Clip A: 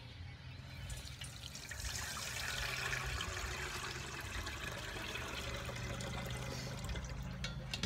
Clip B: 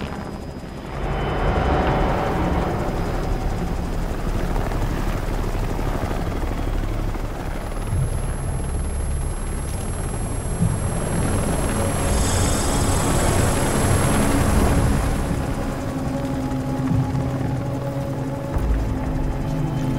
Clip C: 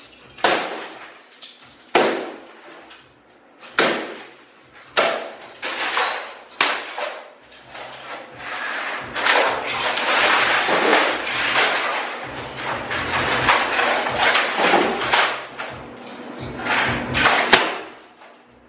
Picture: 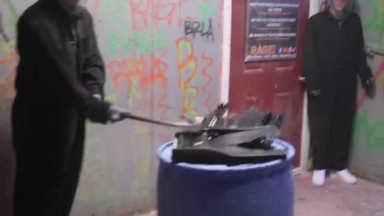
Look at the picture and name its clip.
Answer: C